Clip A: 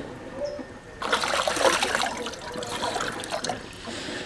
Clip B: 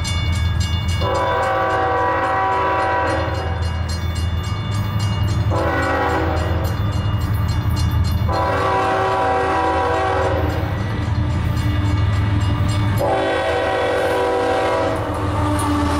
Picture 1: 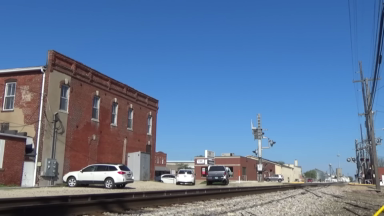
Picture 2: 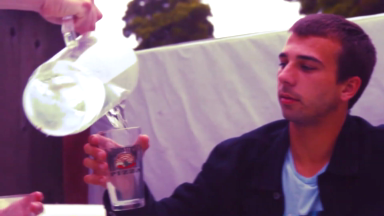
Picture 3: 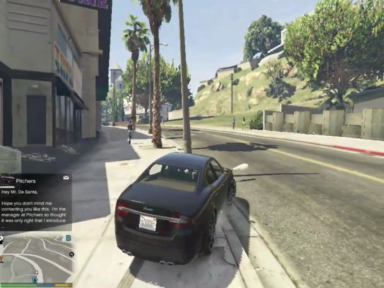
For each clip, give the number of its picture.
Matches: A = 2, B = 1